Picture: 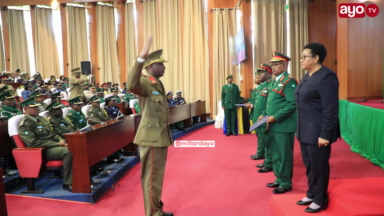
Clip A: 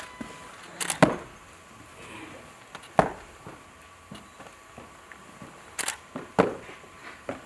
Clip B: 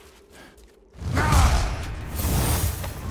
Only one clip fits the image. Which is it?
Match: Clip A